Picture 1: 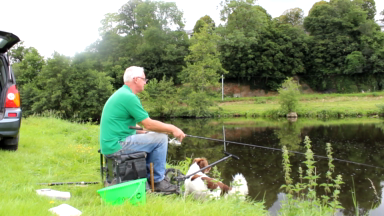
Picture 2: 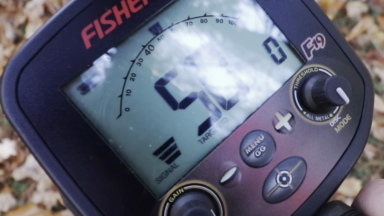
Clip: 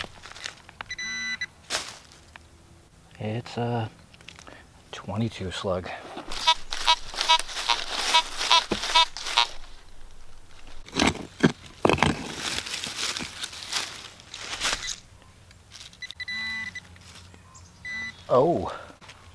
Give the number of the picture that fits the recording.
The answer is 2